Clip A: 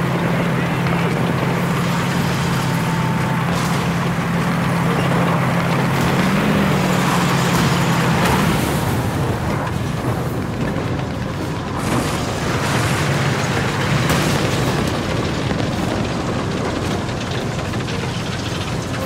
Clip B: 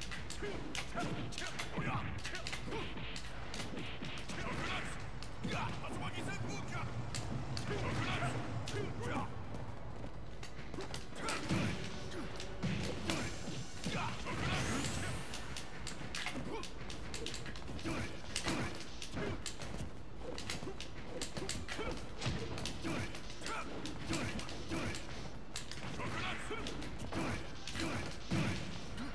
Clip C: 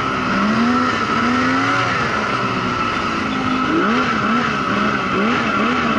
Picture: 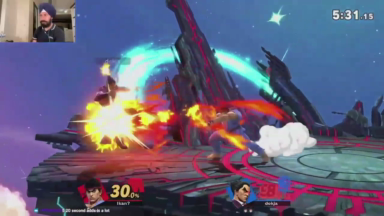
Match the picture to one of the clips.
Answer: B